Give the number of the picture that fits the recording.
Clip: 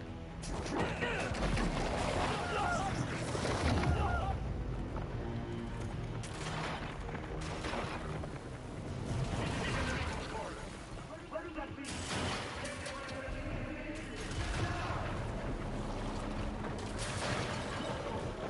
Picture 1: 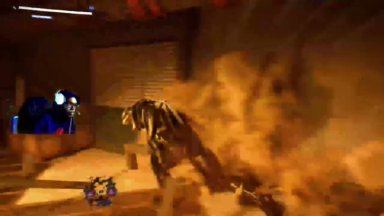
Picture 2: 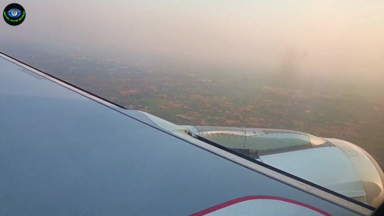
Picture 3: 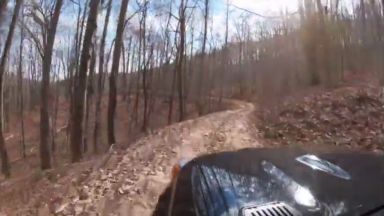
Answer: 1